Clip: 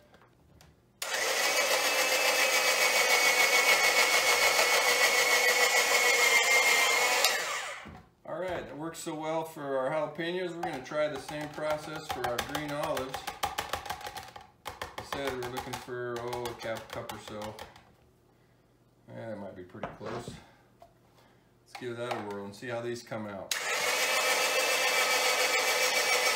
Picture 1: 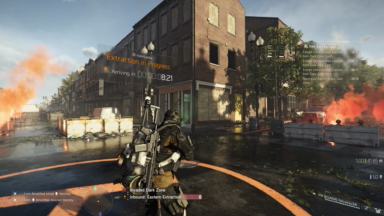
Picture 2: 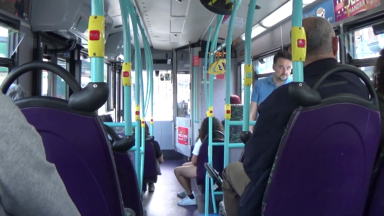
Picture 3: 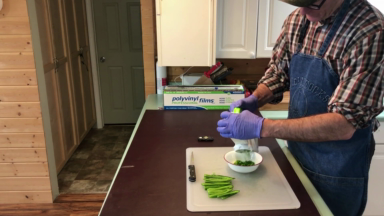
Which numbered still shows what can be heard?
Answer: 3